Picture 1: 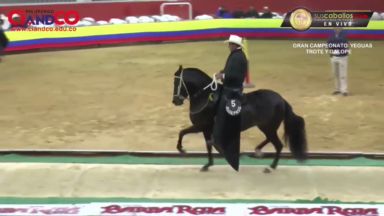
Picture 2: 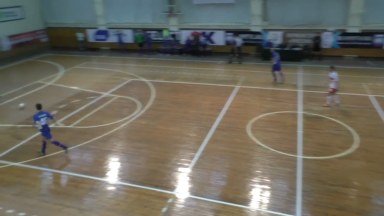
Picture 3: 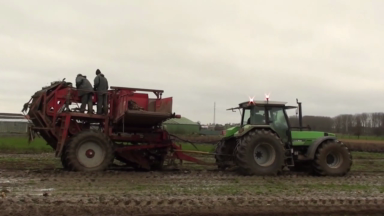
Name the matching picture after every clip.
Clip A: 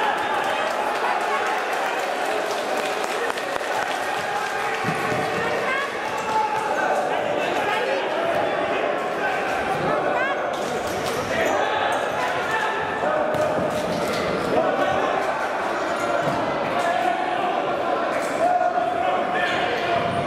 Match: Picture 2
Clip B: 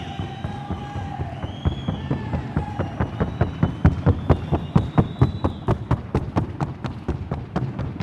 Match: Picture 1